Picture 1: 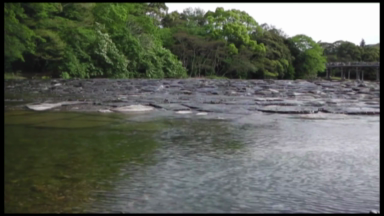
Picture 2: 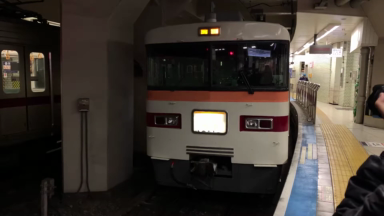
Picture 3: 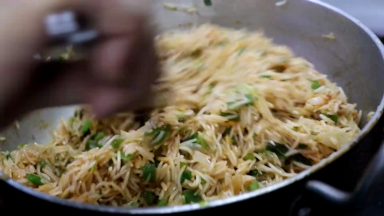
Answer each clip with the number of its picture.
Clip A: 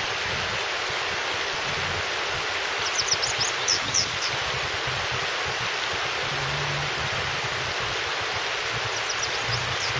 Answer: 1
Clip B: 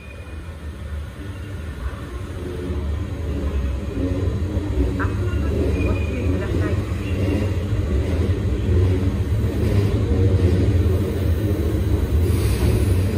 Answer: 2